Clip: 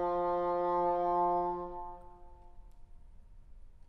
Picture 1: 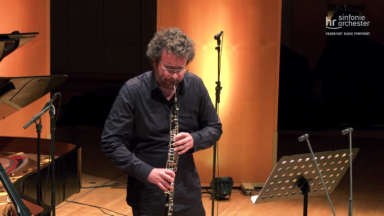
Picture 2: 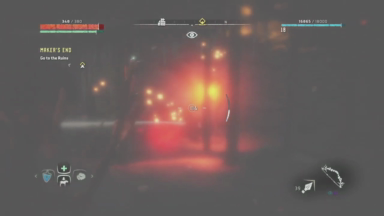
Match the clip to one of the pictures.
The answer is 1